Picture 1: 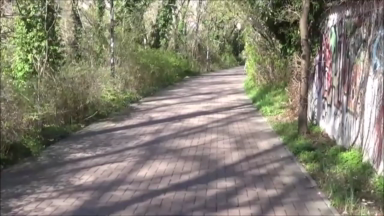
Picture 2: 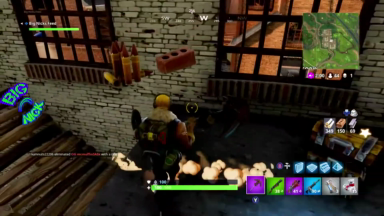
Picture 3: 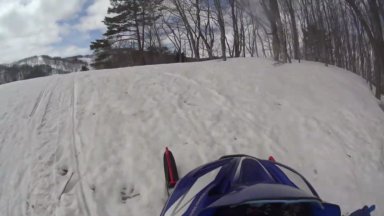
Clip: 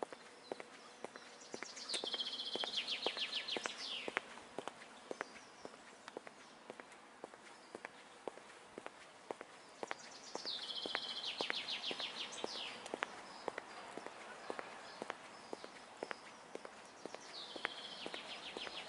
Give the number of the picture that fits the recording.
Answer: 1